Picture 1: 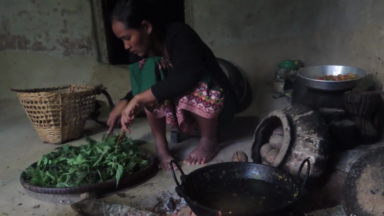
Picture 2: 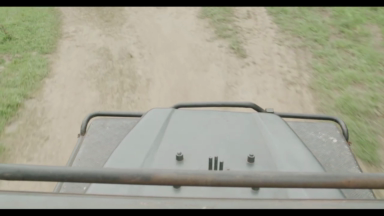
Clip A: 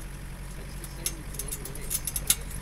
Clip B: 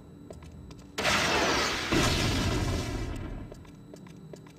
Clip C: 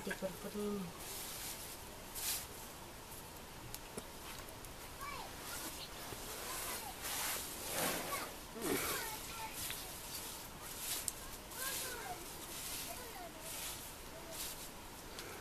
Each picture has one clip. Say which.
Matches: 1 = C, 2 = A